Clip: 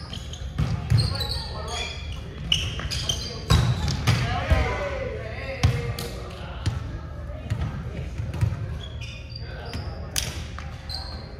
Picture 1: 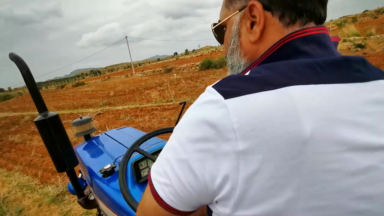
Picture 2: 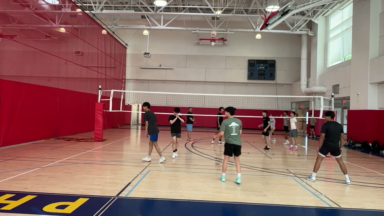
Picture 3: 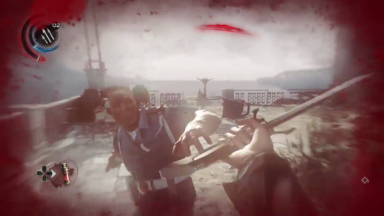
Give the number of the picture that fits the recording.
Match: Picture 2